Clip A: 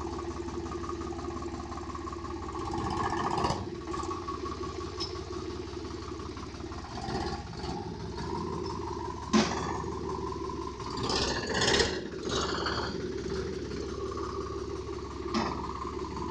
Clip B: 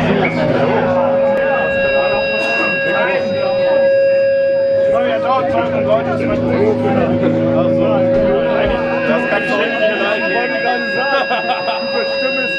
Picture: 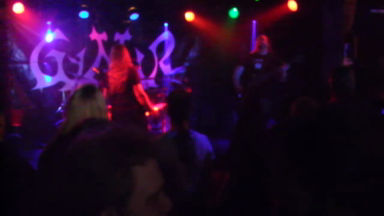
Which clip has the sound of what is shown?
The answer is B